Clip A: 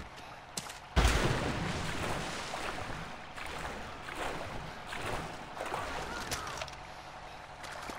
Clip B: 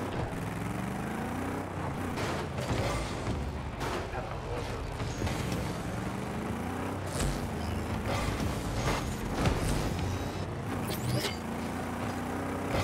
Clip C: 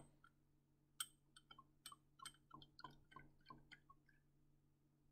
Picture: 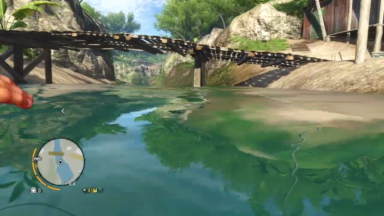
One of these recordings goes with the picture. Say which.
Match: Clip A